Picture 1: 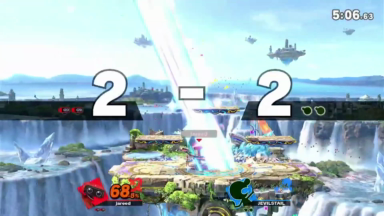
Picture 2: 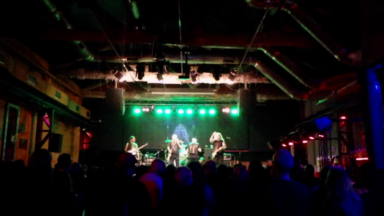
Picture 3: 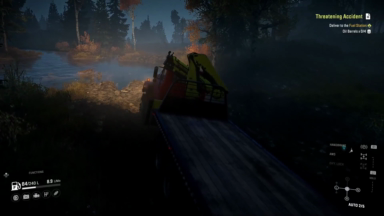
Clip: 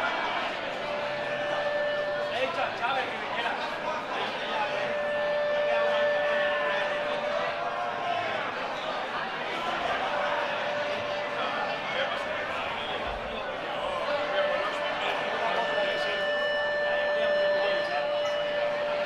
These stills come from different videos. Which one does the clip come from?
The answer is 2